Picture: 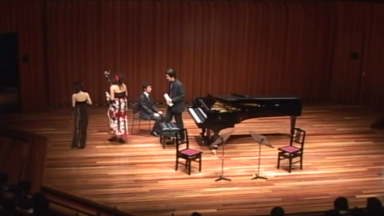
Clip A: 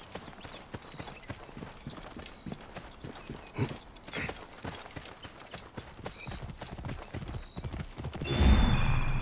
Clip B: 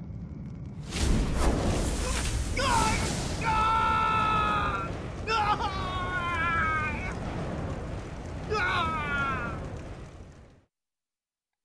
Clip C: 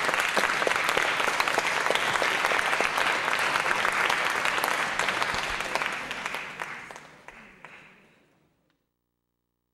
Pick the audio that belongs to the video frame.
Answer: C